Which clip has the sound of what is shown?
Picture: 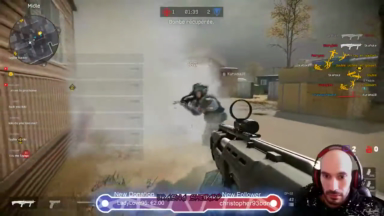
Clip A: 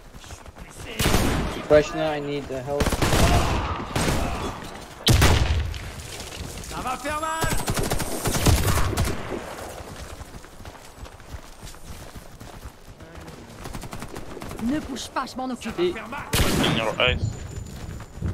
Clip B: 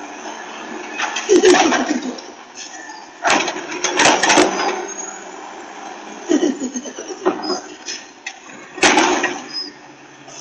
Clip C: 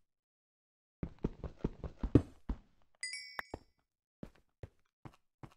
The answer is A